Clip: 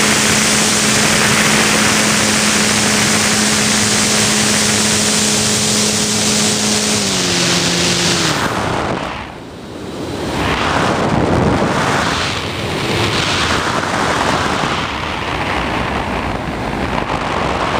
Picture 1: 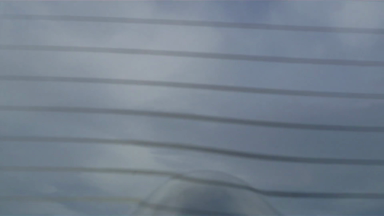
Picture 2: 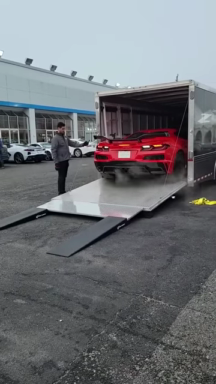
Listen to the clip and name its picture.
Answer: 1